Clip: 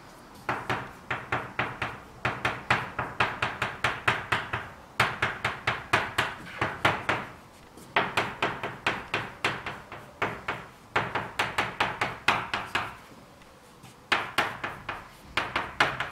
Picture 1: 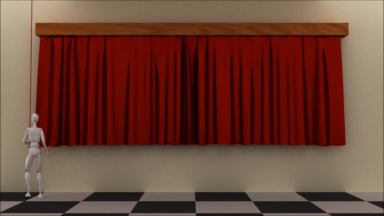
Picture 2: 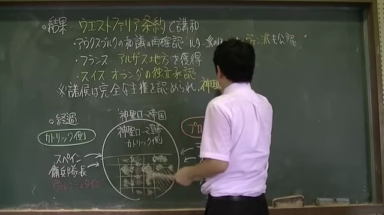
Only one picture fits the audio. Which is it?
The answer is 2